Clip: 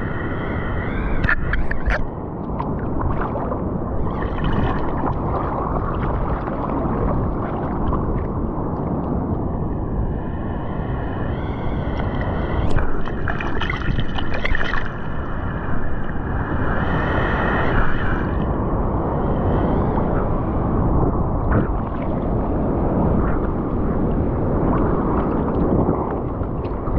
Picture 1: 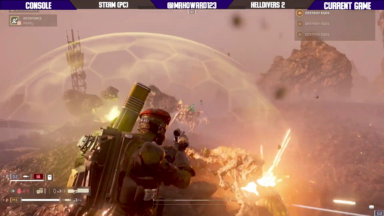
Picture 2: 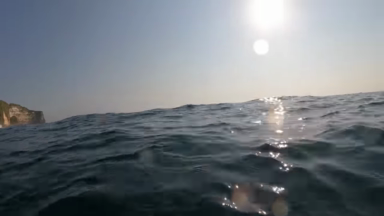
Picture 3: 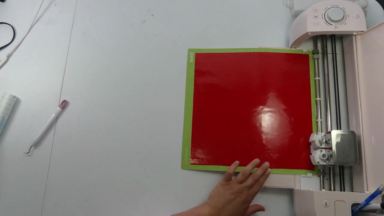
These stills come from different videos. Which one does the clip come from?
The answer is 2